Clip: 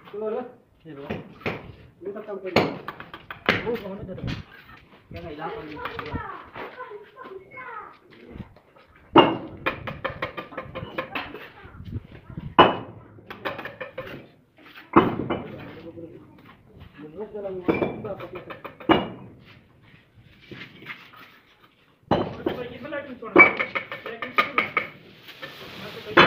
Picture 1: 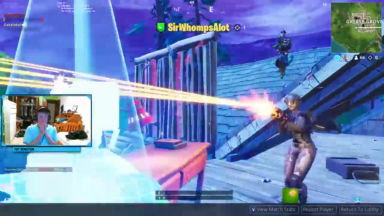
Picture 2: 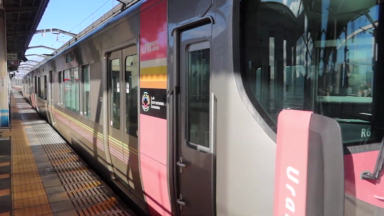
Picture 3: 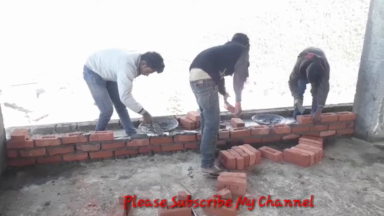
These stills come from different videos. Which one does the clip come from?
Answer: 3